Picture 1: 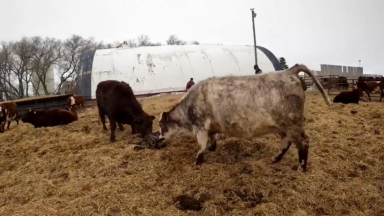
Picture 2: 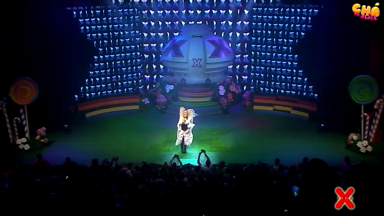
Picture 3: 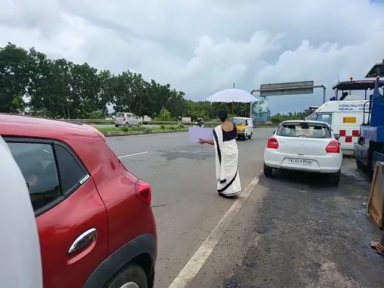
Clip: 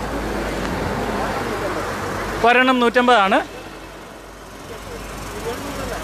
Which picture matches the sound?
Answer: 3